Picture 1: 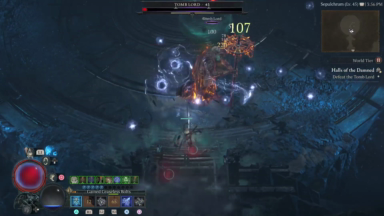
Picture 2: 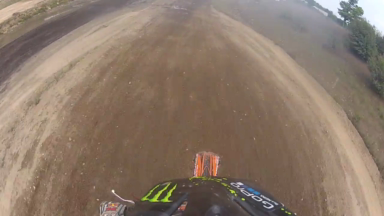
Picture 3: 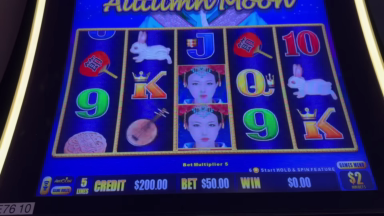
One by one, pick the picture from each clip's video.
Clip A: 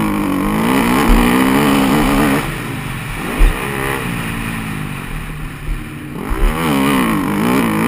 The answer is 2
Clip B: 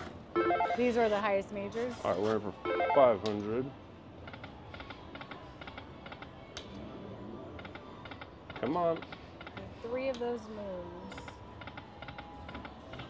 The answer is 3